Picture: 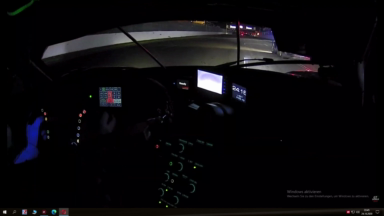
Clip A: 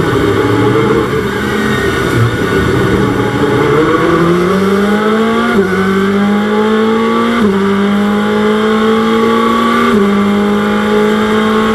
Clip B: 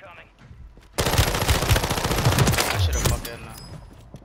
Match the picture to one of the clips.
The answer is A